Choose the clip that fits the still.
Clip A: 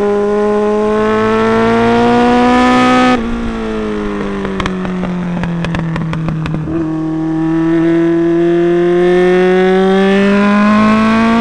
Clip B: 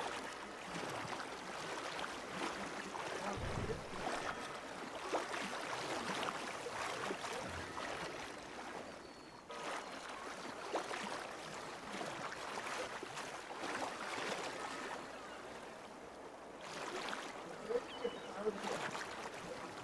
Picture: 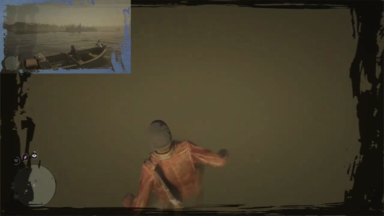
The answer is B